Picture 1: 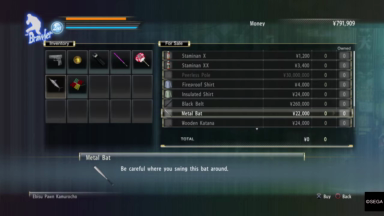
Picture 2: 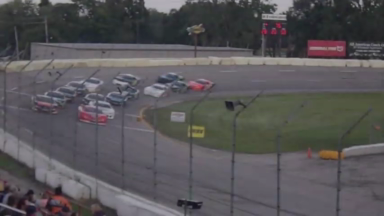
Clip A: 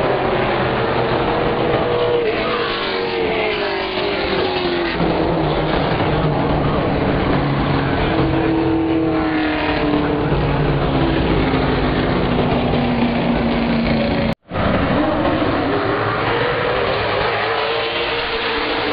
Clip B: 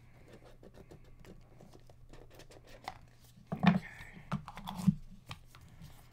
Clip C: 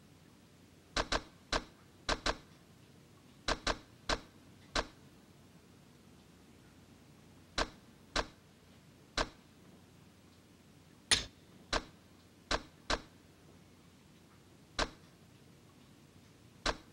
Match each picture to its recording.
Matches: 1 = C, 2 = A